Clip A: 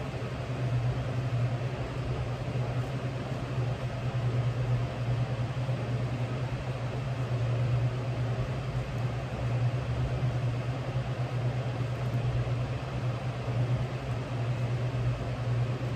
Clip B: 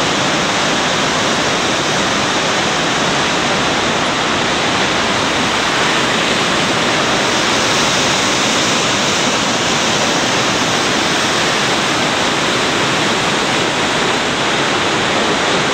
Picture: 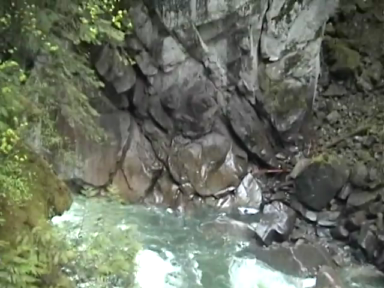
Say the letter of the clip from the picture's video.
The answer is B